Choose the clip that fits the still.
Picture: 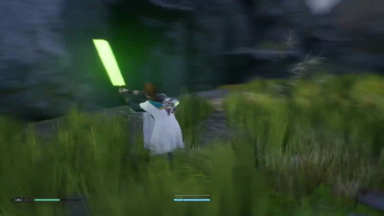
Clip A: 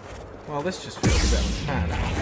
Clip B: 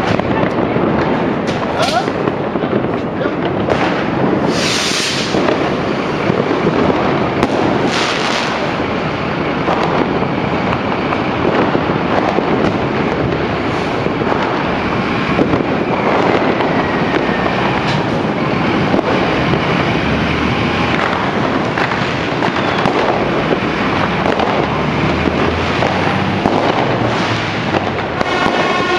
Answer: A